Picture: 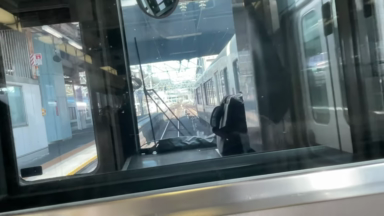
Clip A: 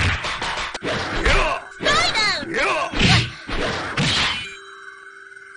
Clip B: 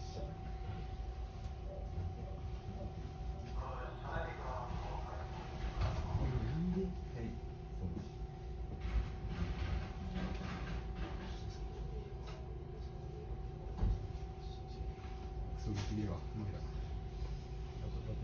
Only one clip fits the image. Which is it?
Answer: B